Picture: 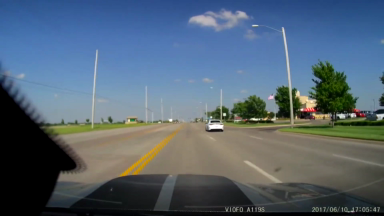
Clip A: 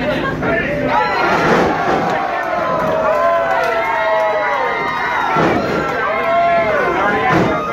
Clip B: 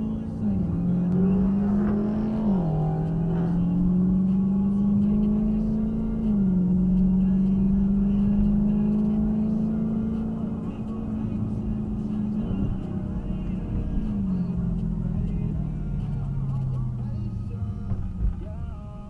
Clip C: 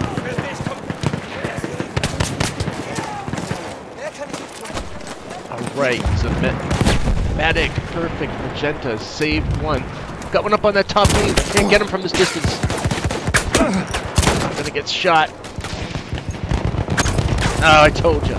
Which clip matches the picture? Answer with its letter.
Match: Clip B